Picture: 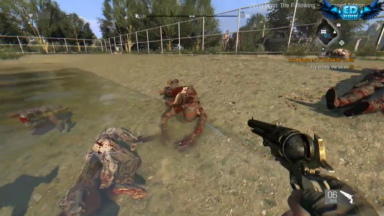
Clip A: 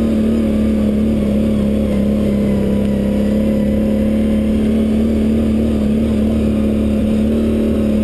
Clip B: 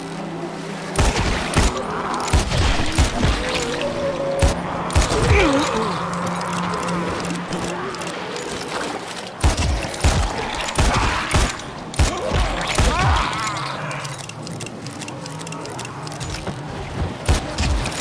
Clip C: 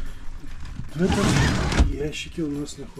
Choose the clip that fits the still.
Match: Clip B